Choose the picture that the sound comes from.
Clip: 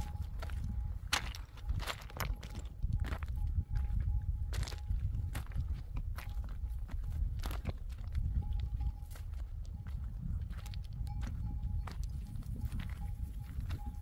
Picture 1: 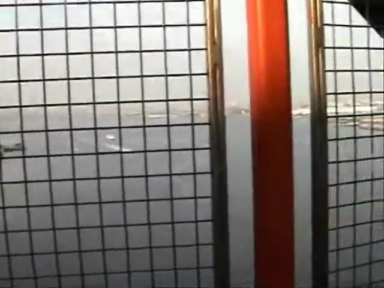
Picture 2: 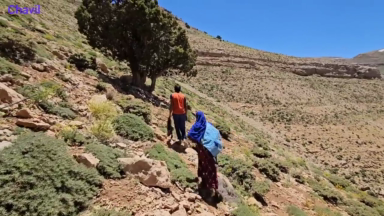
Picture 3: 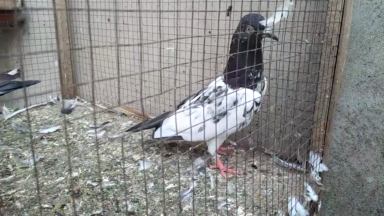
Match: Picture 2